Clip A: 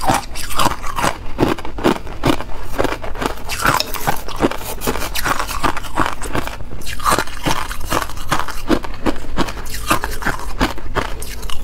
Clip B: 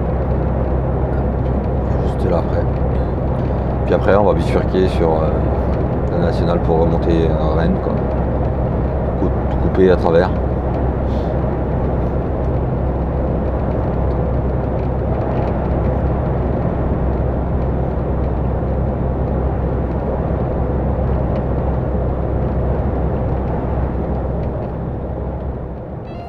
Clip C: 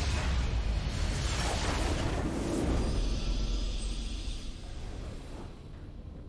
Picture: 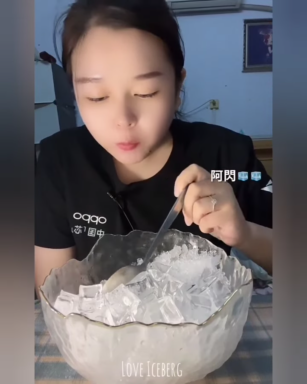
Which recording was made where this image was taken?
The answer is A